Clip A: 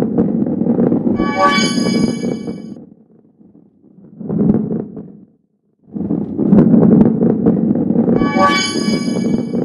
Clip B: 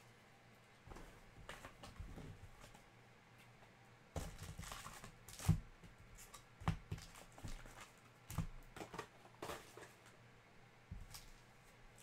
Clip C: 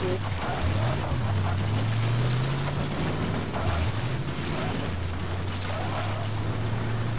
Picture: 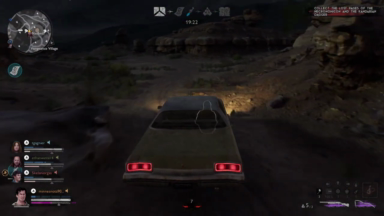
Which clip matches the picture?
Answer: C